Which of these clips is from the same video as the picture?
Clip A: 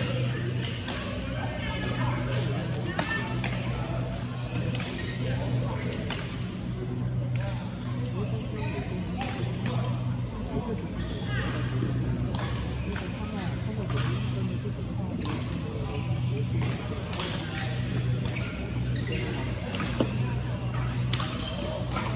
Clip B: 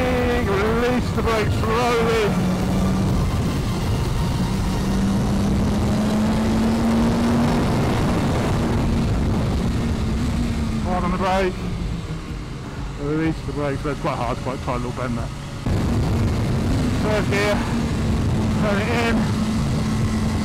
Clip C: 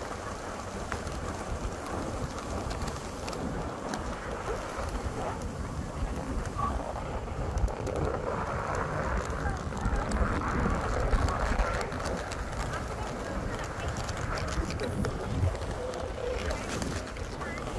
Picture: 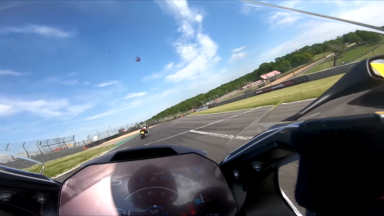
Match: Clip B